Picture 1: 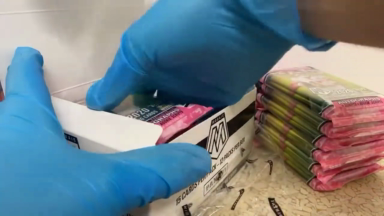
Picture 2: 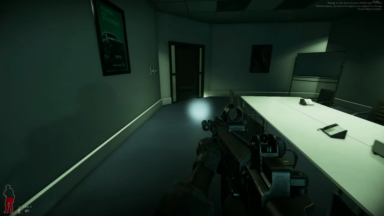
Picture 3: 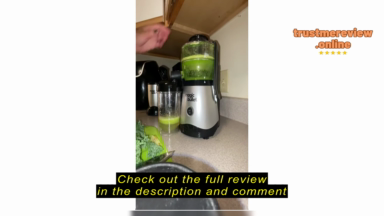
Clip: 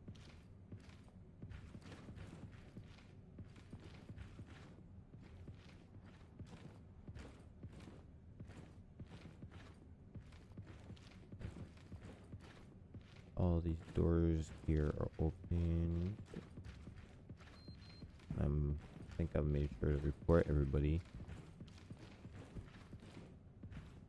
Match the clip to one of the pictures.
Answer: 2